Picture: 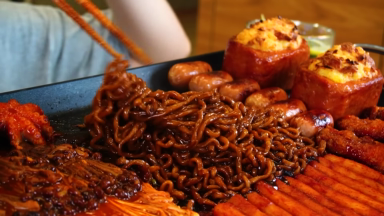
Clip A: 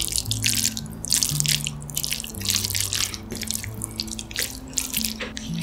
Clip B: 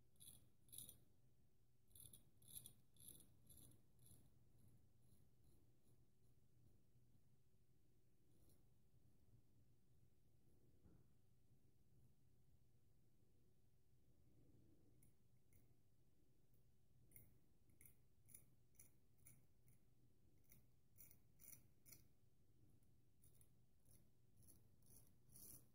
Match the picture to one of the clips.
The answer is A